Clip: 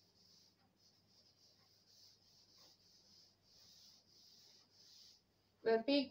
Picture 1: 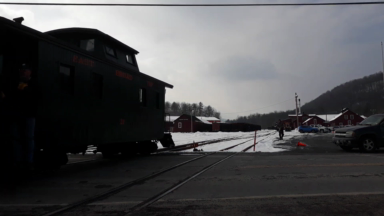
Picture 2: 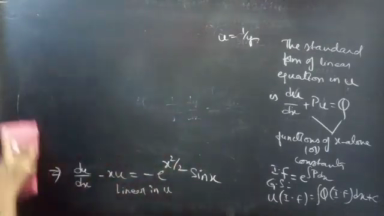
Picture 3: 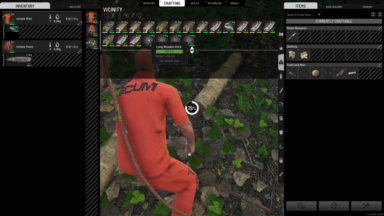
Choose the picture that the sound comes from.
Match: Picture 2